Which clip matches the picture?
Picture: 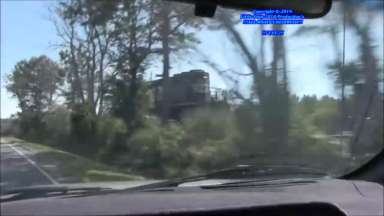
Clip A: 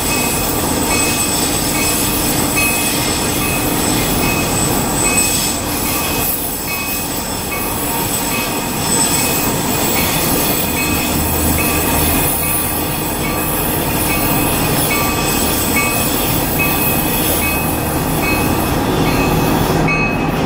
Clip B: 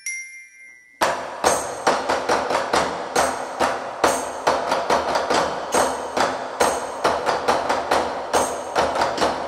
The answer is A